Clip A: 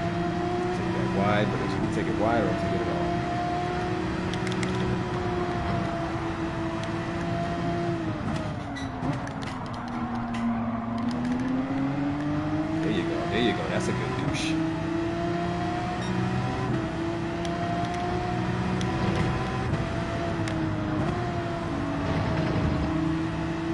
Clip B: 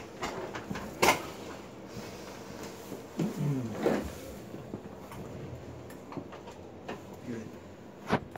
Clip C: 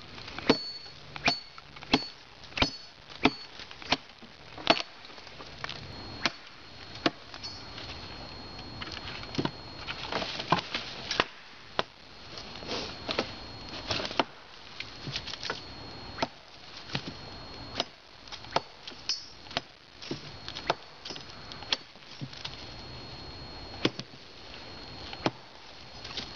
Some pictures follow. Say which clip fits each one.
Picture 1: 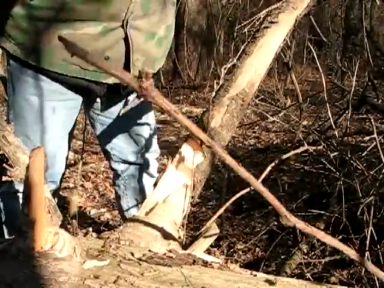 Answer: C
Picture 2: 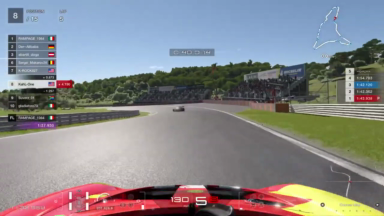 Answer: A